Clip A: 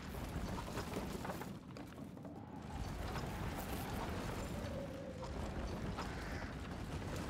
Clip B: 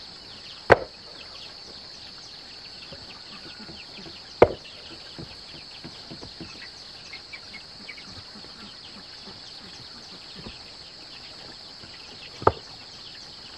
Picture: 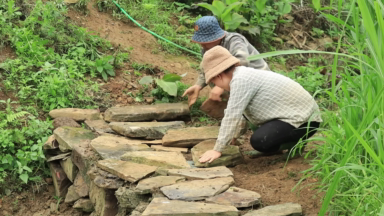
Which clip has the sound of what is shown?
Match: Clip B